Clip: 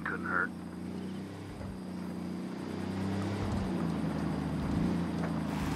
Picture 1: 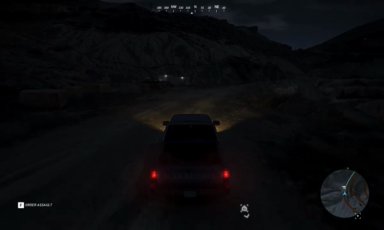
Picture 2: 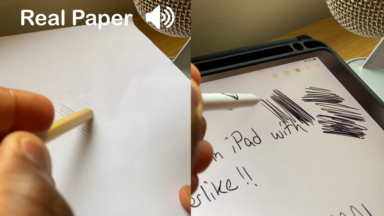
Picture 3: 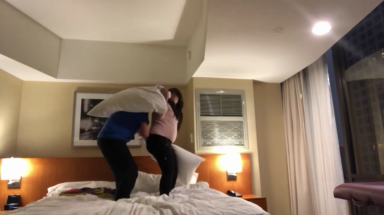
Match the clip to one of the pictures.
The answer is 1